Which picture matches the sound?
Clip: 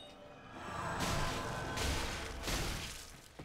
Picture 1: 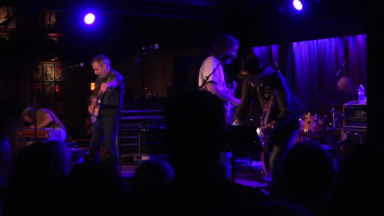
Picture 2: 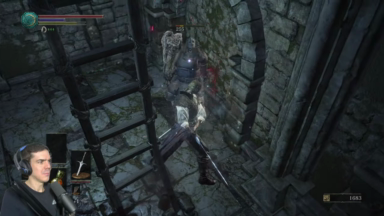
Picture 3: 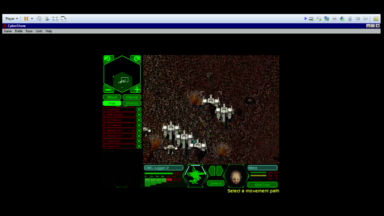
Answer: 2